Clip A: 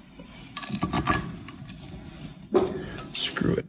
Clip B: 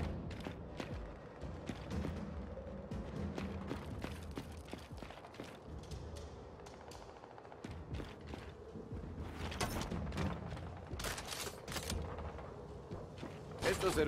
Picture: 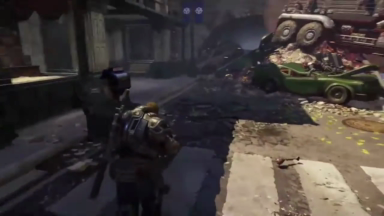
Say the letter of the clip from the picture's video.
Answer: B